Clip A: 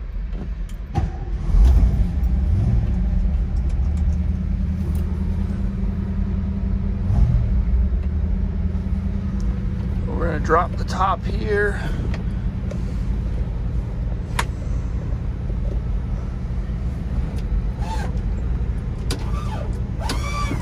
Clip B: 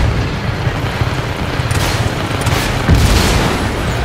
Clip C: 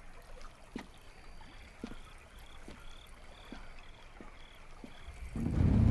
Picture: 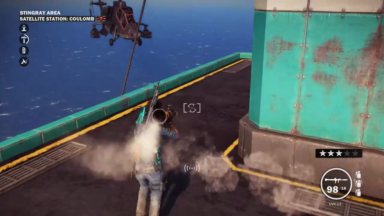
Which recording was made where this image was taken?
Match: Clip B